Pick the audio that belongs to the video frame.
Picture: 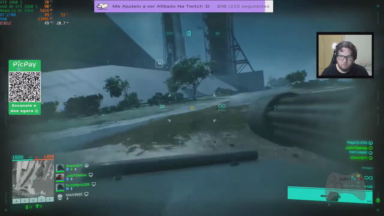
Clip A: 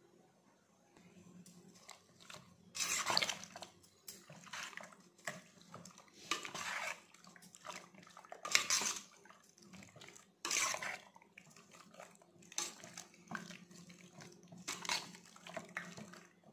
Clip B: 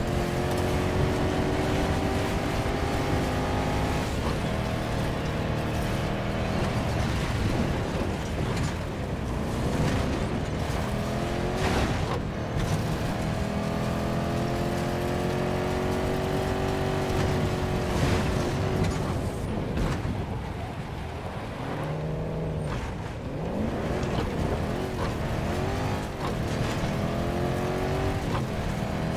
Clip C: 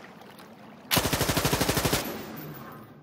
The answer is B